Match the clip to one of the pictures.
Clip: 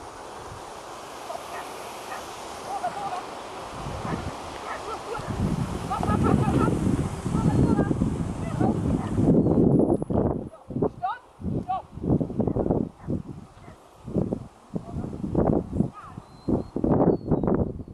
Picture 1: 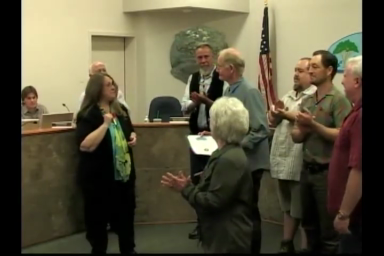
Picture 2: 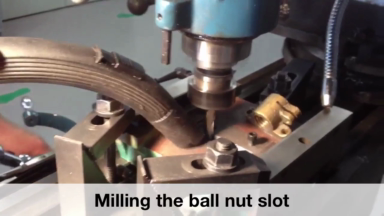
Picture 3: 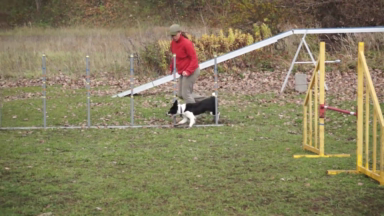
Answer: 3